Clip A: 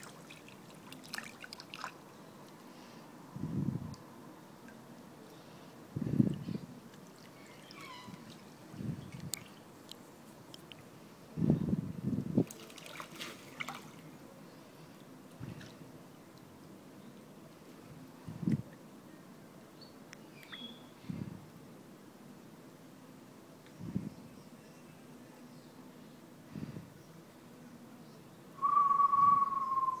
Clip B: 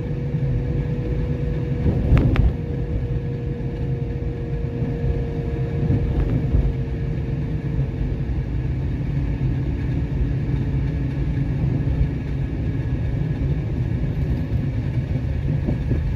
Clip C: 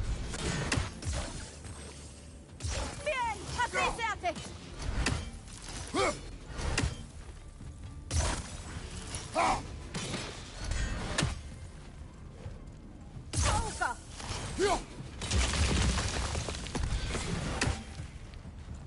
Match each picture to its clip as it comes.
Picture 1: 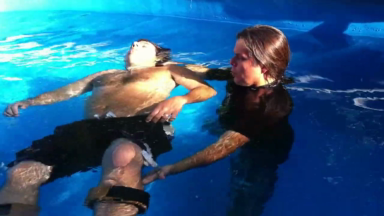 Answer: A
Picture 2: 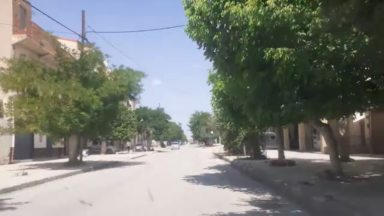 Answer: B